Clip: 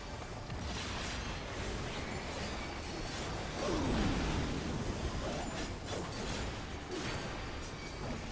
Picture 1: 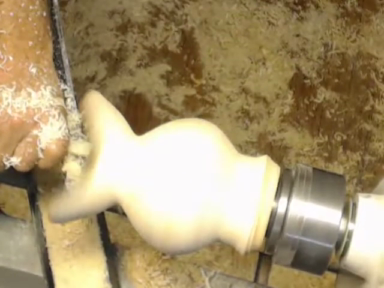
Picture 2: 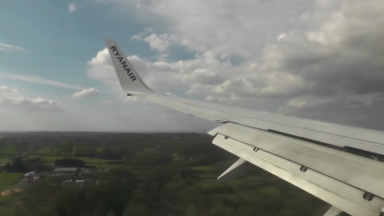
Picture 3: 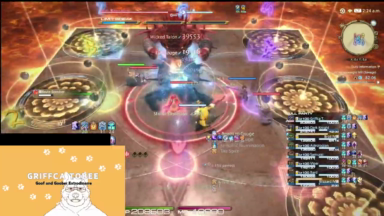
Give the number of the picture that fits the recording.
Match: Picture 3